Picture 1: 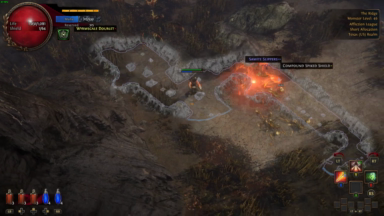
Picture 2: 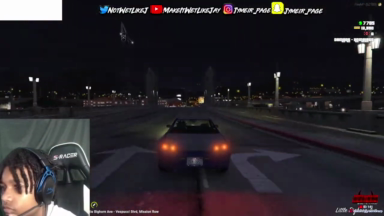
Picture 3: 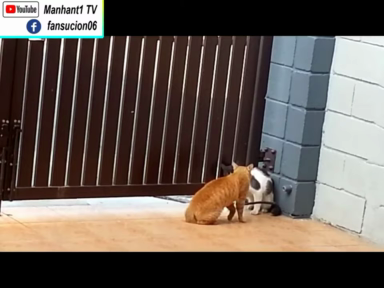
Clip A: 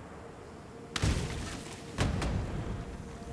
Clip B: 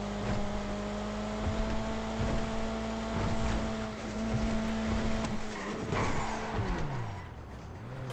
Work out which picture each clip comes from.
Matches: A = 1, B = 2